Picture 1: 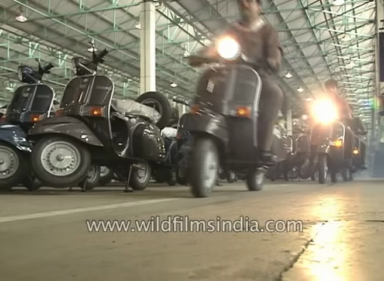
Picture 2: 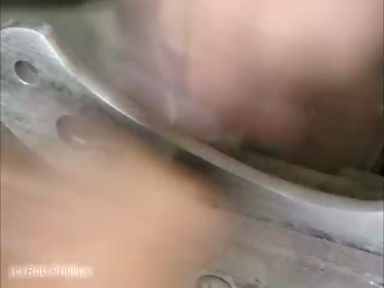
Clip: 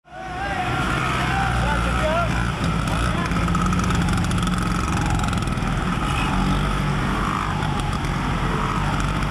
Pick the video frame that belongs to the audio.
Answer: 1